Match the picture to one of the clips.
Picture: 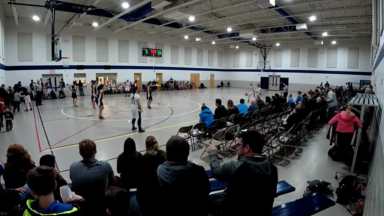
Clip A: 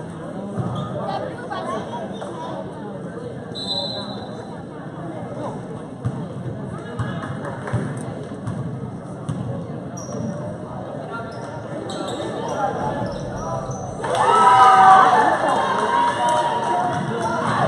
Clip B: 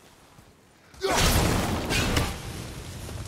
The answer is A